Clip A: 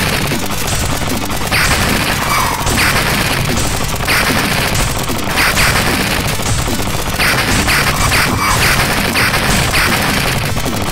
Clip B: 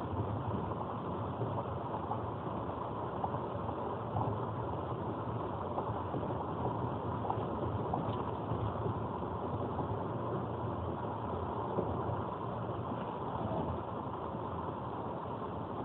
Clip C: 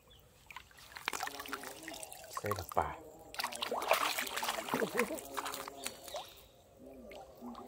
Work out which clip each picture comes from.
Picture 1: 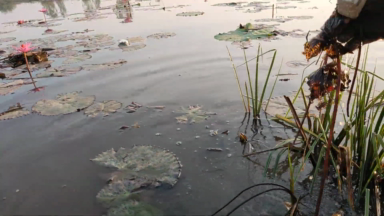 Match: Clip C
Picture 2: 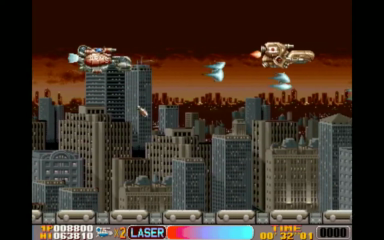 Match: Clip A